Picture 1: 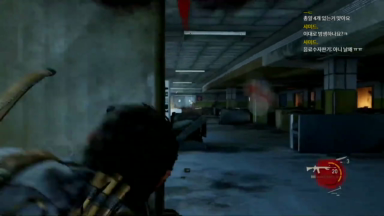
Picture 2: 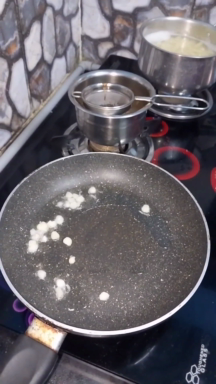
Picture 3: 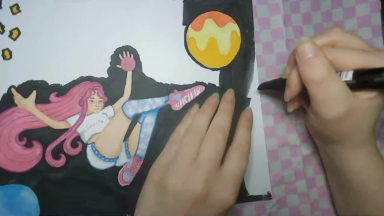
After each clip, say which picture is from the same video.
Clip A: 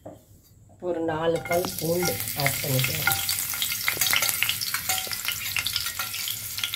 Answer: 2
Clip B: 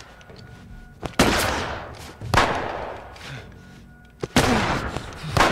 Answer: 1